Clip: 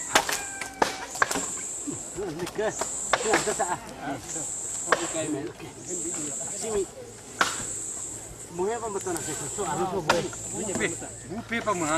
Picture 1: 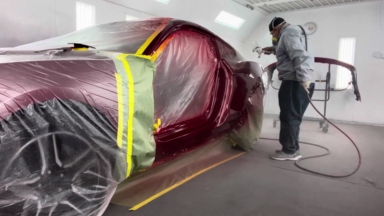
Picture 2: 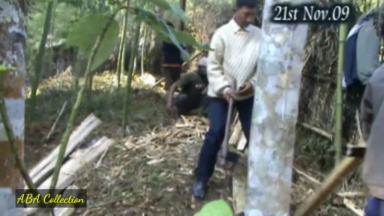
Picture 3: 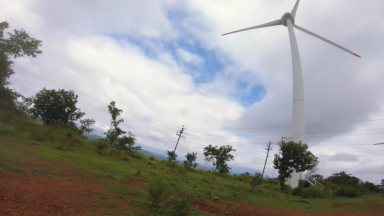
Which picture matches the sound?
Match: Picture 2